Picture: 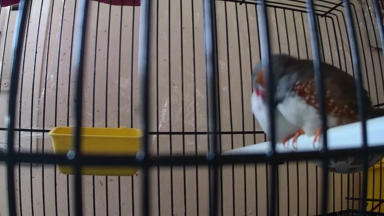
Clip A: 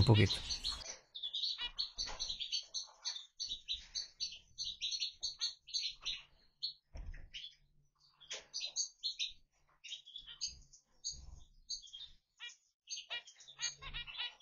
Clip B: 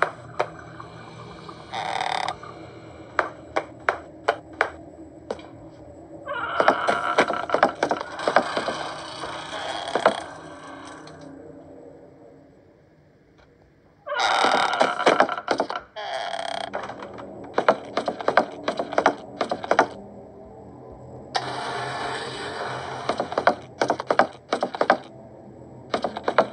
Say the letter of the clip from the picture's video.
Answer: A